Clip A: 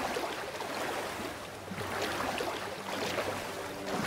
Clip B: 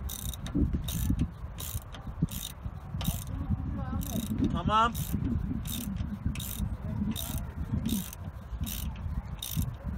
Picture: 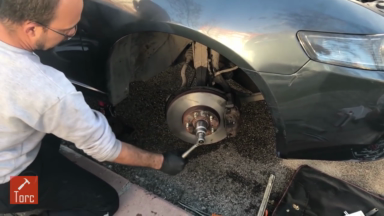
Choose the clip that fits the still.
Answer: B